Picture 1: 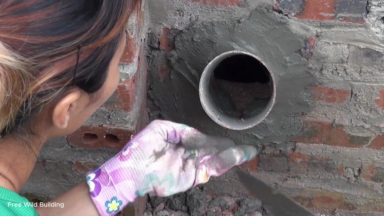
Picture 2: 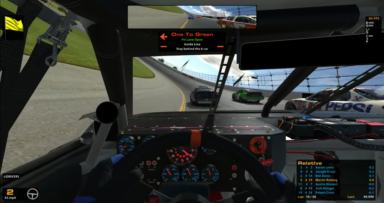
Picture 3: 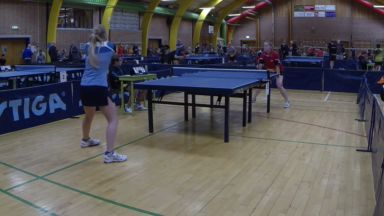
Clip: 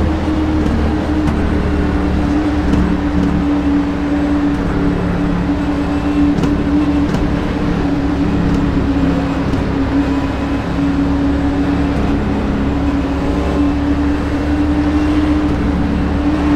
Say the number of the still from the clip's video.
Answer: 2